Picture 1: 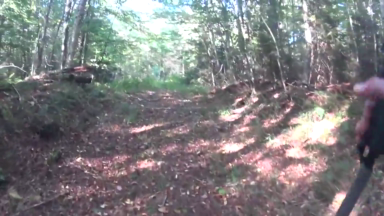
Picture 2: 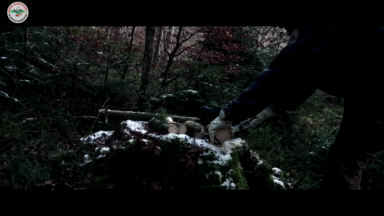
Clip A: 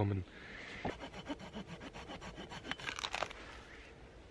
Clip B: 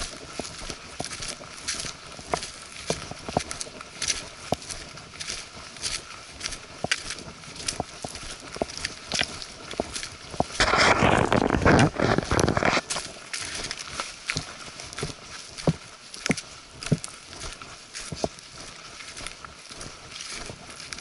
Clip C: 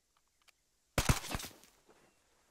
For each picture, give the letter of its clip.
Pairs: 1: B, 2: A